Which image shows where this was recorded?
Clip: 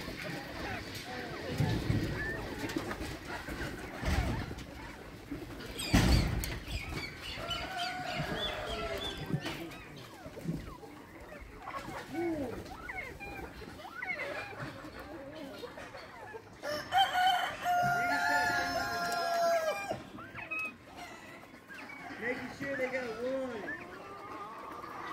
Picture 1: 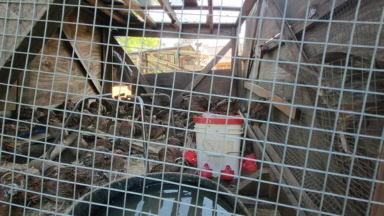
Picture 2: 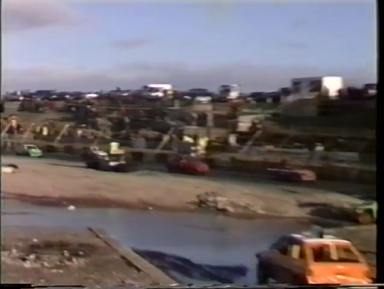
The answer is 1